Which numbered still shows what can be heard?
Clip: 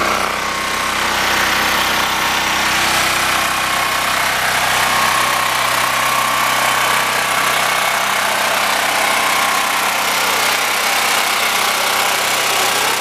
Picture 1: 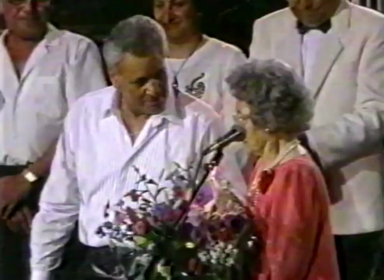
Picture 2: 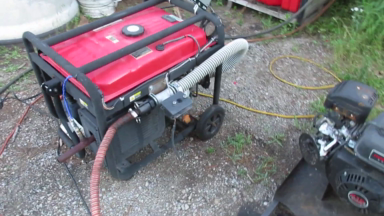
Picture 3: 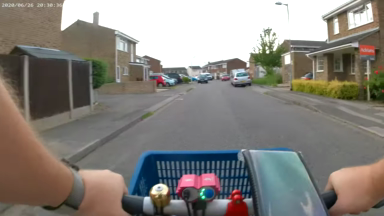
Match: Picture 2